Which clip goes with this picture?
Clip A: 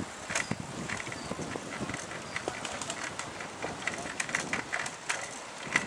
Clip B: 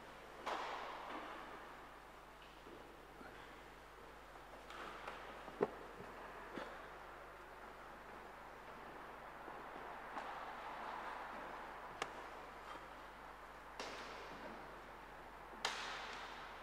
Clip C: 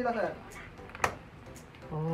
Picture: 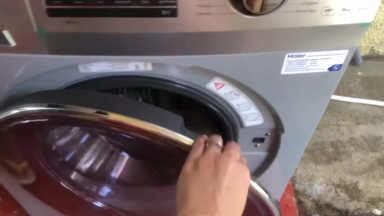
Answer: C